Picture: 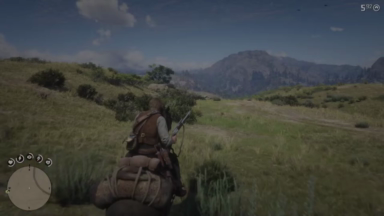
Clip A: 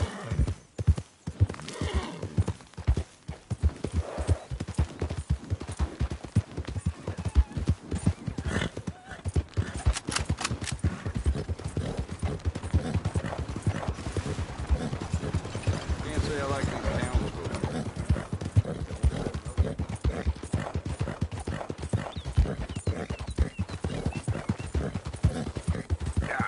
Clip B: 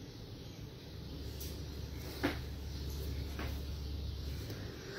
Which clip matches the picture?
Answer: A